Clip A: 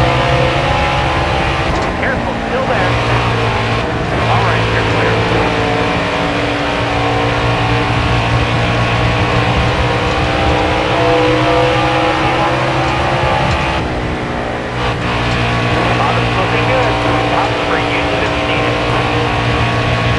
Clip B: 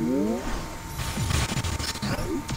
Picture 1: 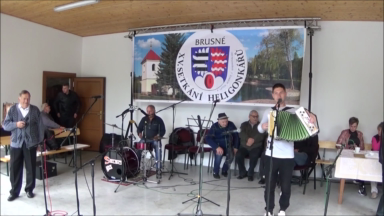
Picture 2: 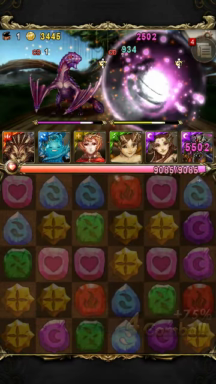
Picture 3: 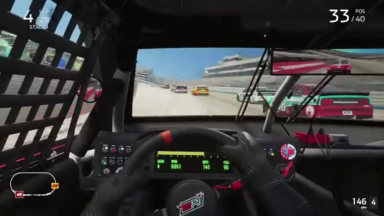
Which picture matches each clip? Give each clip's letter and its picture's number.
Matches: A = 3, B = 2